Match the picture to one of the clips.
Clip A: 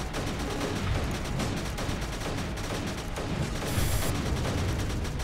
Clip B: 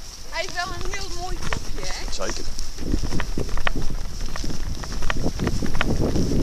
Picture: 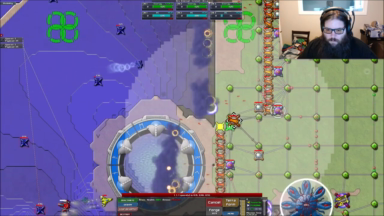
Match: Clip A